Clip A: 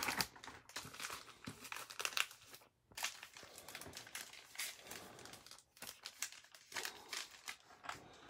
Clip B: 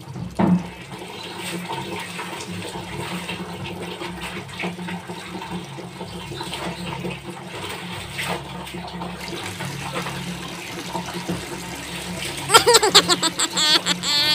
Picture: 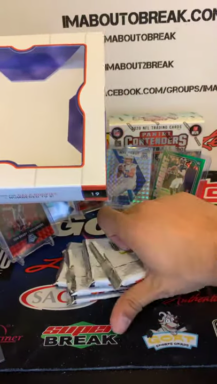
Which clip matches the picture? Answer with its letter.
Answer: A